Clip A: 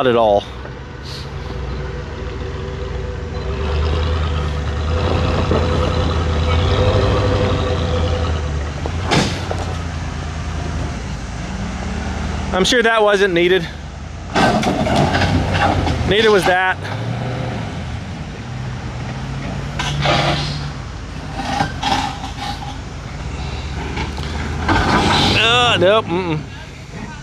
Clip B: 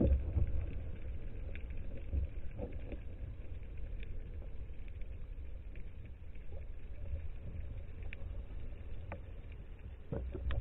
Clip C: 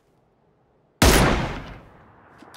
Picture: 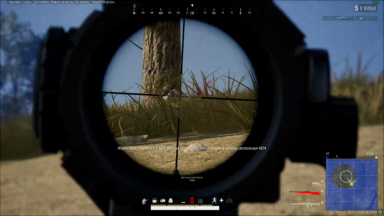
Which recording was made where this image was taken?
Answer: C